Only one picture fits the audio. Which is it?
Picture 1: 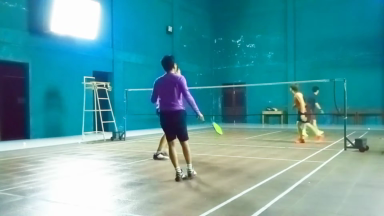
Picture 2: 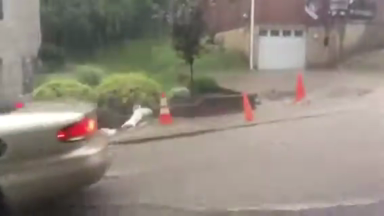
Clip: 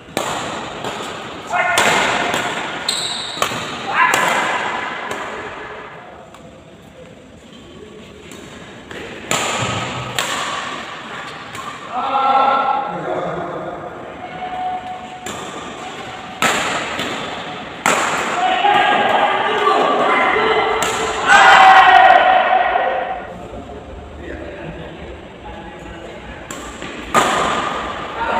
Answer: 1